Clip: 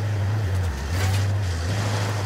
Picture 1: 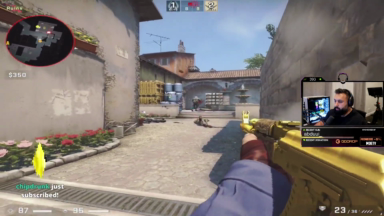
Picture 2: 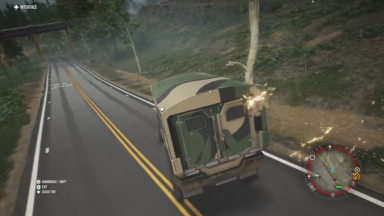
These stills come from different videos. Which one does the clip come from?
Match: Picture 2